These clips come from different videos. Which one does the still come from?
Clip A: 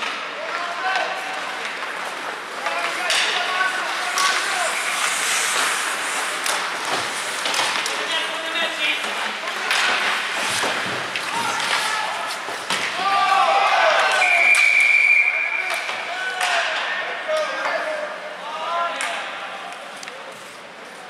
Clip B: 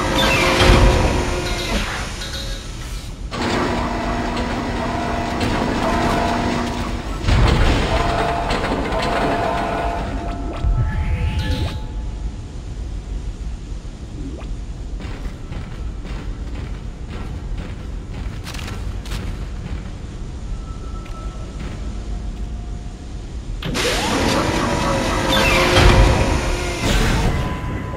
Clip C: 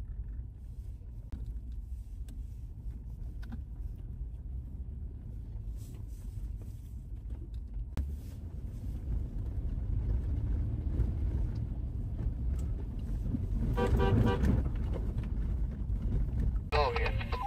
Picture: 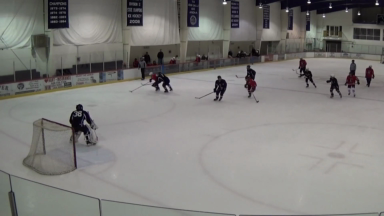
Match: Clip A